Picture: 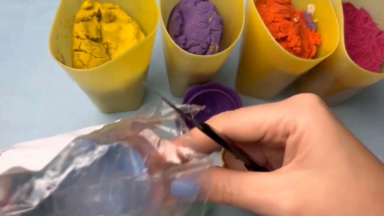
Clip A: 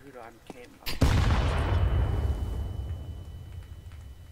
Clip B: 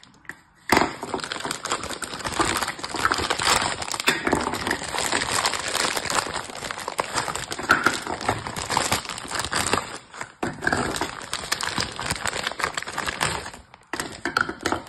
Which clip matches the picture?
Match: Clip B